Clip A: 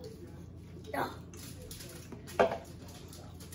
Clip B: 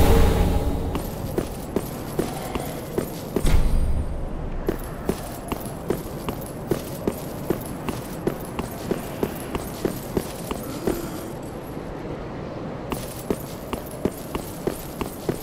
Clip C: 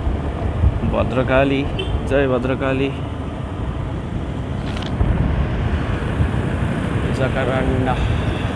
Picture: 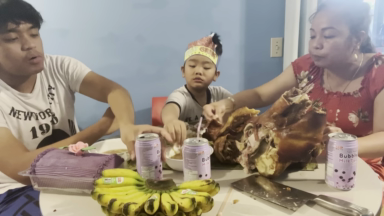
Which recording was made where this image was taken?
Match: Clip A